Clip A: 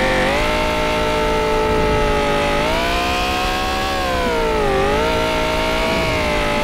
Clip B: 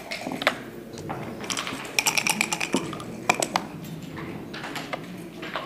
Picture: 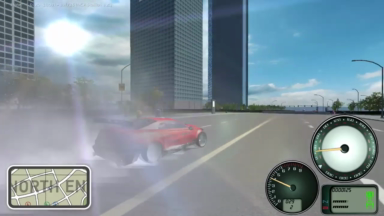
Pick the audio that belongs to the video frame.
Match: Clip A